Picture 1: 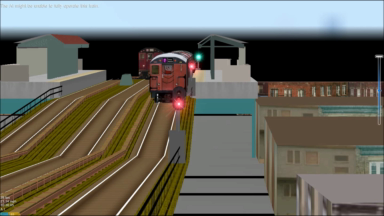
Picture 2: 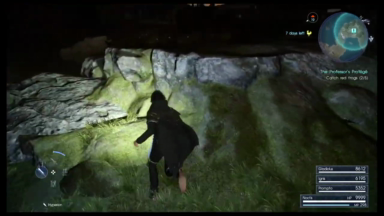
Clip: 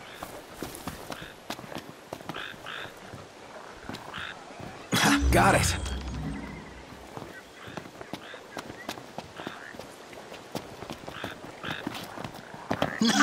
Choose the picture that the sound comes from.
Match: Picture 2